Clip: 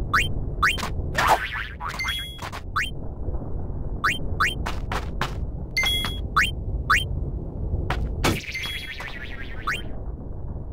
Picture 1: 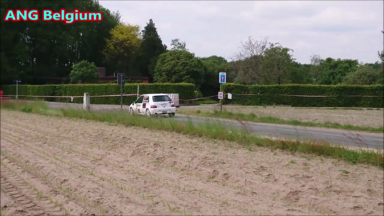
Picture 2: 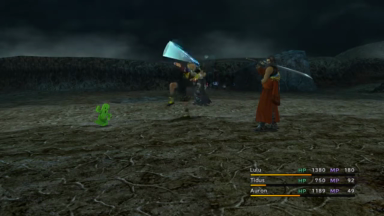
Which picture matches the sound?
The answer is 2